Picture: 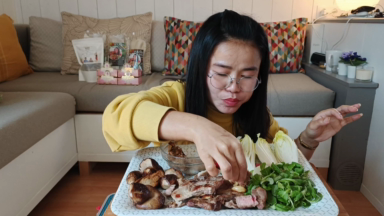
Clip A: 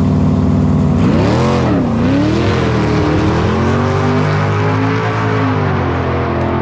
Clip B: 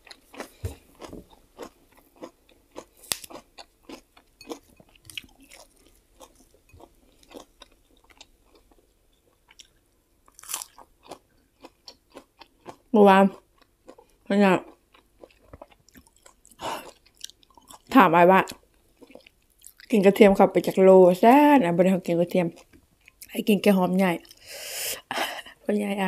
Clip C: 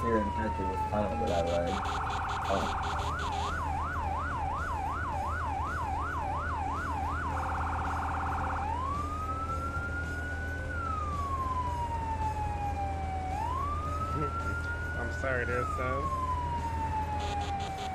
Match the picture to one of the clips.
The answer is B